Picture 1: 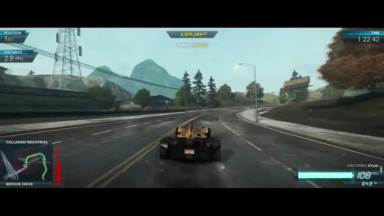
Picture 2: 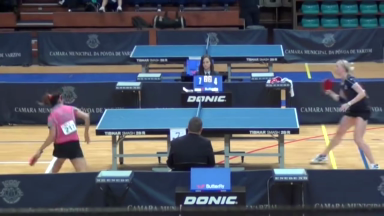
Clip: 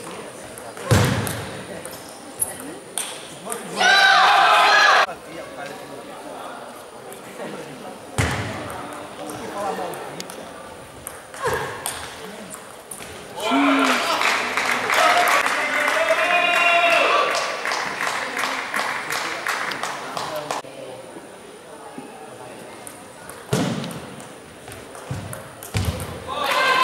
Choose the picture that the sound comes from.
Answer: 2